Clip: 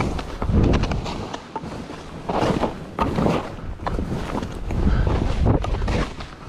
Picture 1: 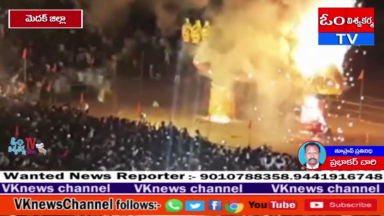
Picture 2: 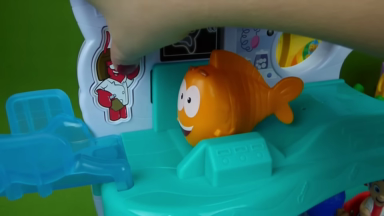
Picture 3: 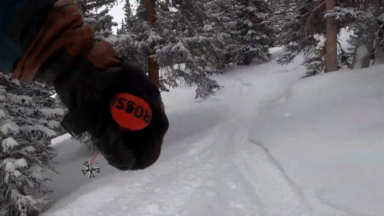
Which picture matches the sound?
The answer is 3